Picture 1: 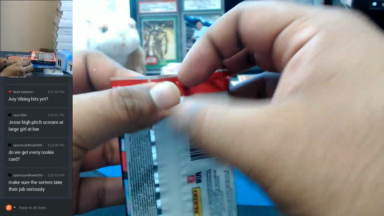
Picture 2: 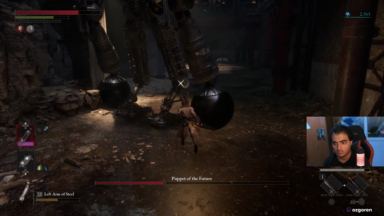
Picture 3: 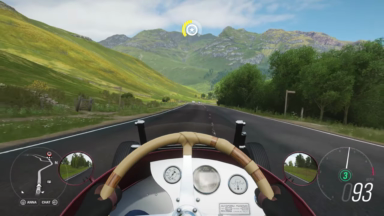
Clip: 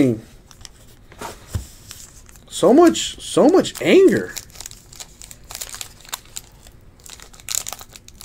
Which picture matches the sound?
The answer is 1